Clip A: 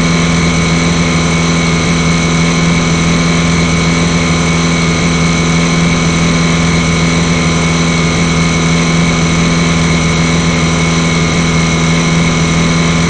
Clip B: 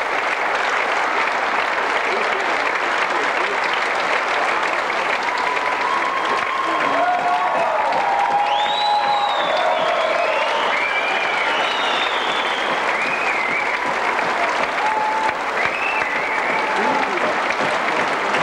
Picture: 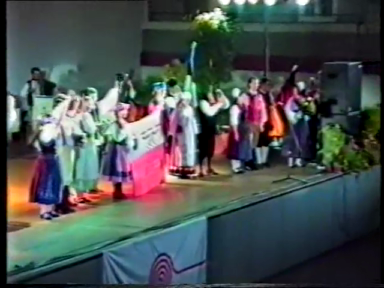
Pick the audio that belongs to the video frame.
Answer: B